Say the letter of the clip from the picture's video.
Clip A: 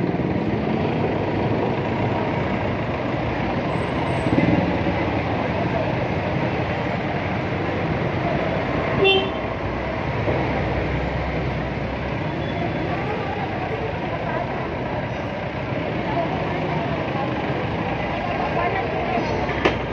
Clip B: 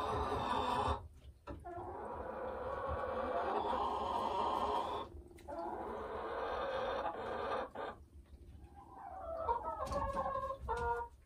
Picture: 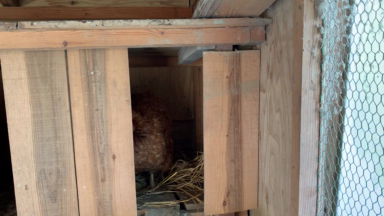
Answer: B